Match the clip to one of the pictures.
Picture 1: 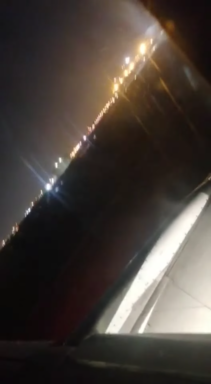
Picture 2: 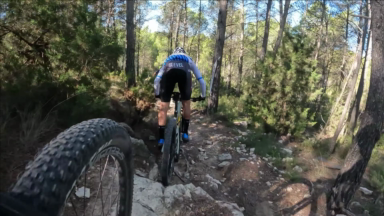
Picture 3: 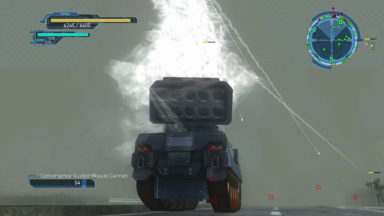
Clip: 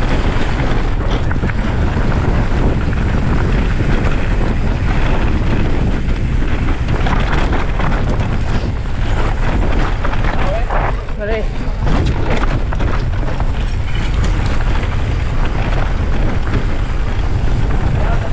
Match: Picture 2